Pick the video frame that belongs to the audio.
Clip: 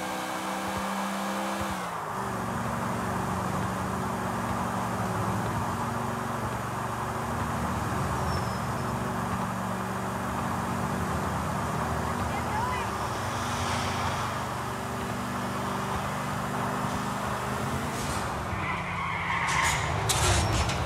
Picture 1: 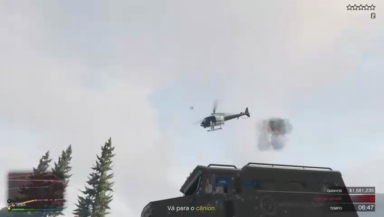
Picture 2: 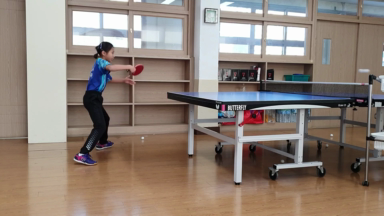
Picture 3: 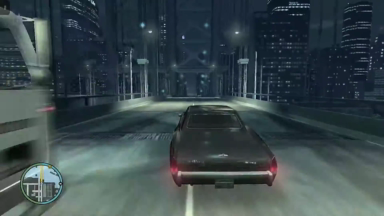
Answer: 3